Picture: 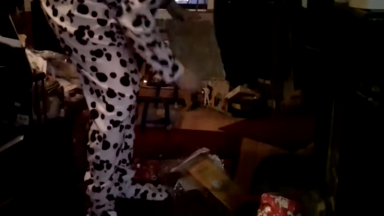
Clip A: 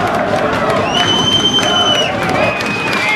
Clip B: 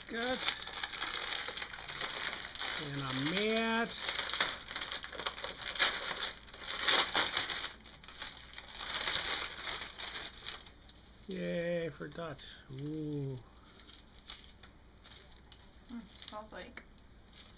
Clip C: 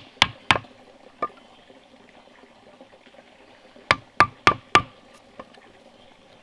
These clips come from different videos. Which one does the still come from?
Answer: B